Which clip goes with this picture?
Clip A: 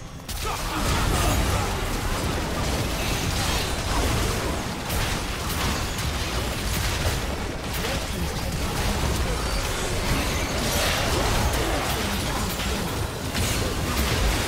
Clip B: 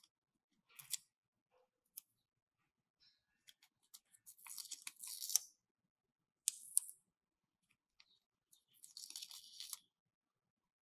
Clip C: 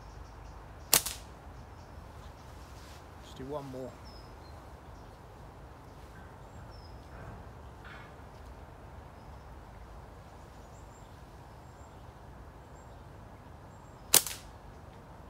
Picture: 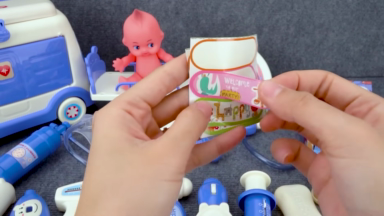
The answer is B